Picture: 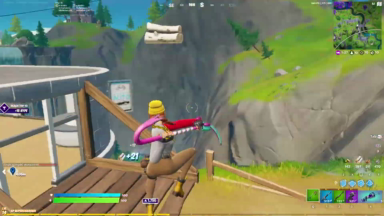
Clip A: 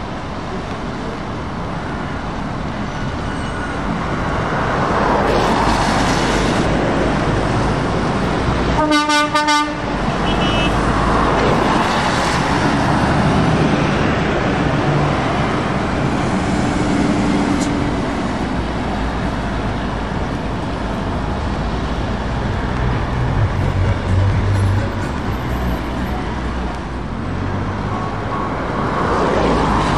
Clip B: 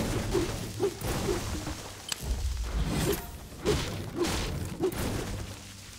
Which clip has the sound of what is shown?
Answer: B